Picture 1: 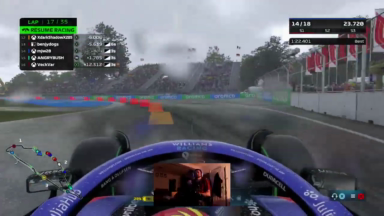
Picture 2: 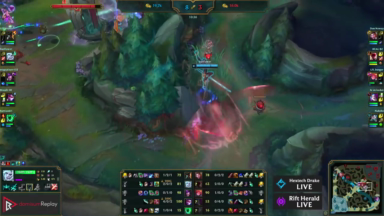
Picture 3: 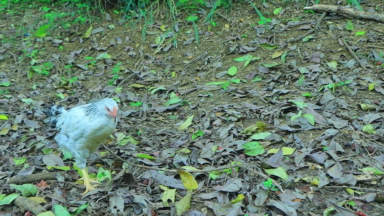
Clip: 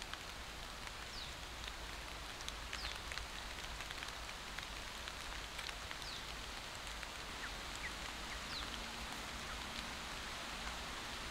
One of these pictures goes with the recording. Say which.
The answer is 3